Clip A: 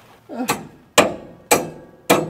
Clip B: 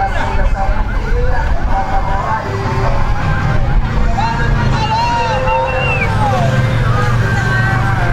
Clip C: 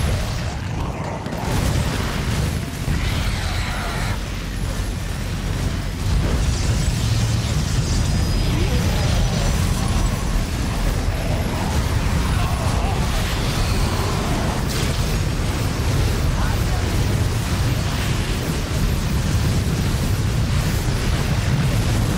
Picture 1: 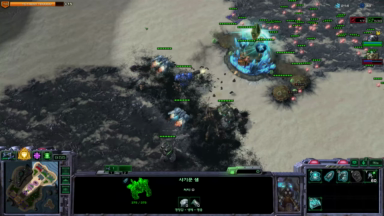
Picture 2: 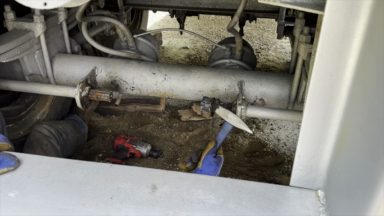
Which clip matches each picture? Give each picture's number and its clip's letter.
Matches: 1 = C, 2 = A